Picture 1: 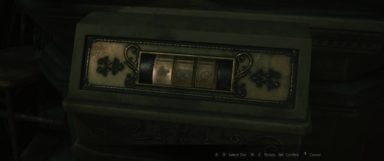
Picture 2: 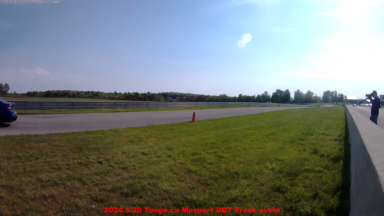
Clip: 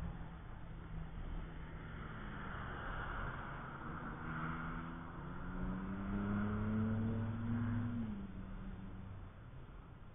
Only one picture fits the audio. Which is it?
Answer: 2